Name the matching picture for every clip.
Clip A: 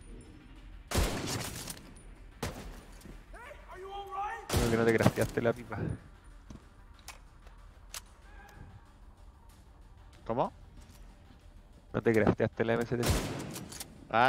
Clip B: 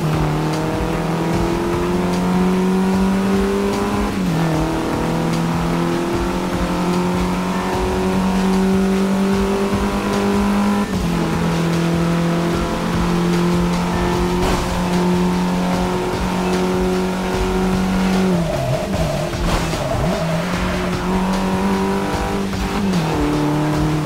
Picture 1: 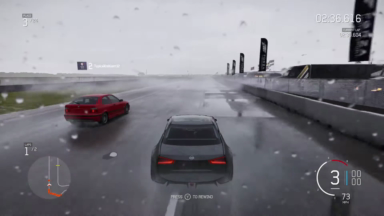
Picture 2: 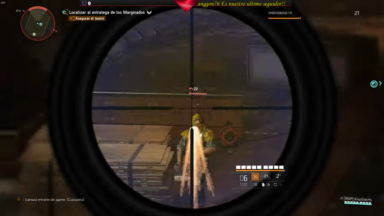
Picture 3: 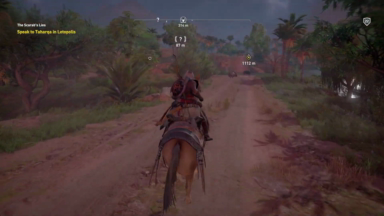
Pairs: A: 2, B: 1